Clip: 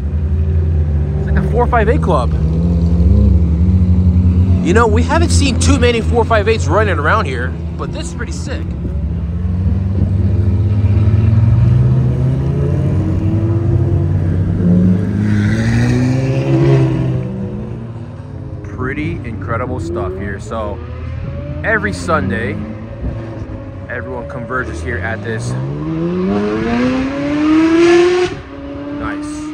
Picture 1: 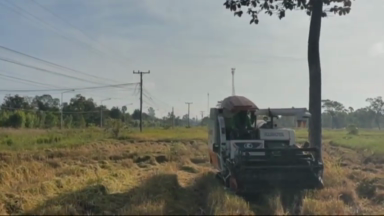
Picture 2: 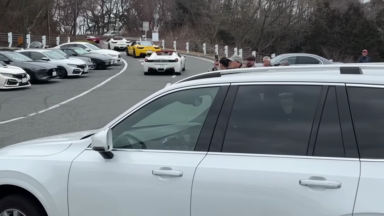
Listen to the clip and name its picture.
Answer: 2